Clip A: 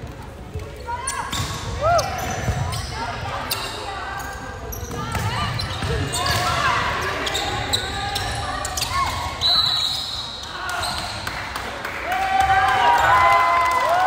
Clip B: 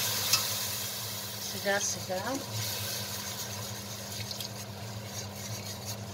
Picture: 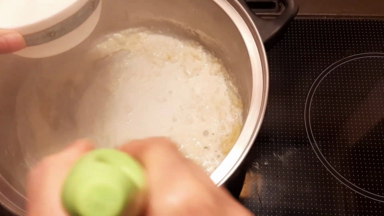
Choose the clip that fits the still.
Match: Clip B